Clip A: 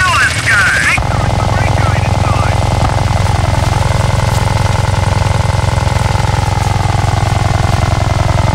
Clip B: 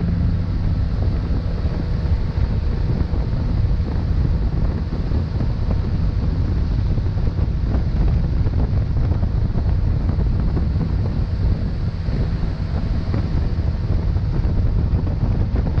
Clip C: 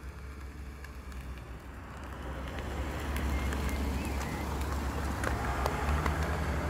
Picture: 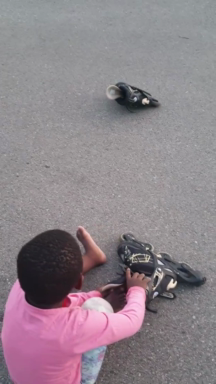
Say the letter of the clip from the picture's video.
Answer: C